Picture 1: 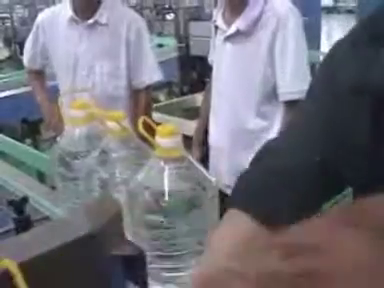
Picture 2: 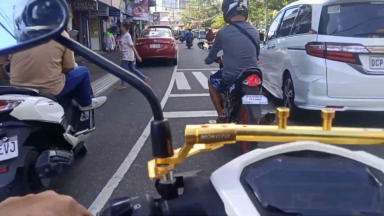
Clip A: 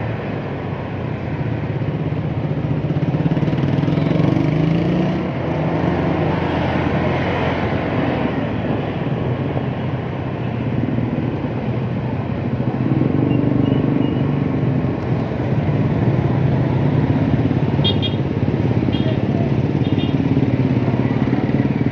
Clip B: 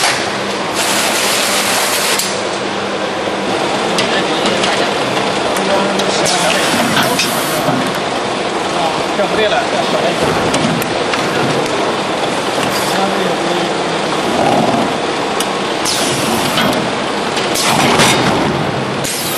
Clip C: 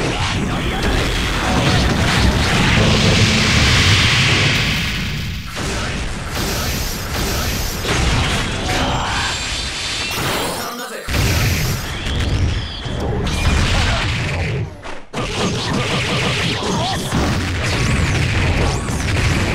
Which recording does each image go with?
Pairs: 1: B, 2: A